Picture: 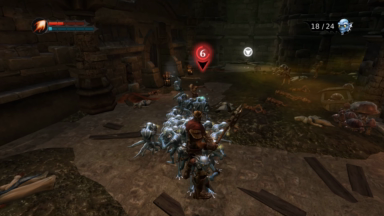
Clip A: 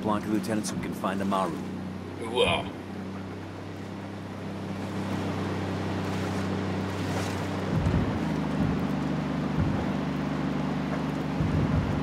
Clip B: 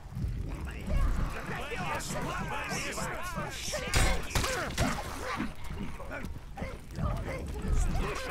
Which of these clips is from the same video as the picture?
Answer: B